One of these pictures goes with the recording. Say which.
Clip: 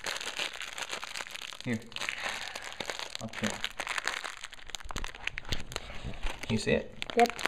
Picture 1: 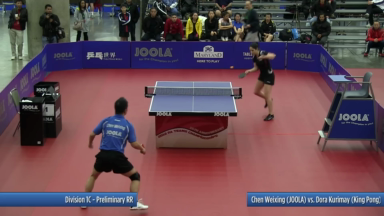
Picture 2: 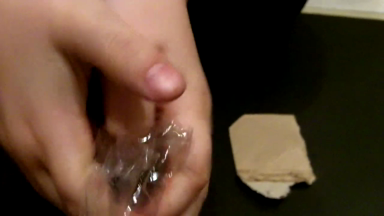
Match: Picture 2